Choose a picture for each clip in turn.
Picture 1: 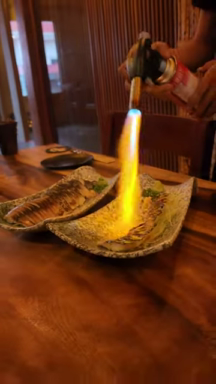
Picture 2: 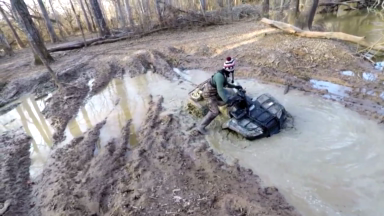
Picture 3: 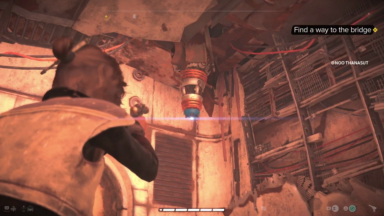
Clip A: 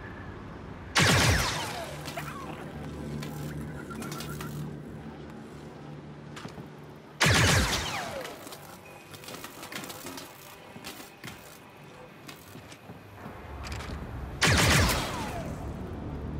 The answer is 3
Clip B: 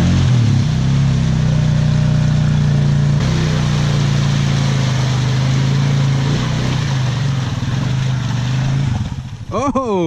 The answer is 2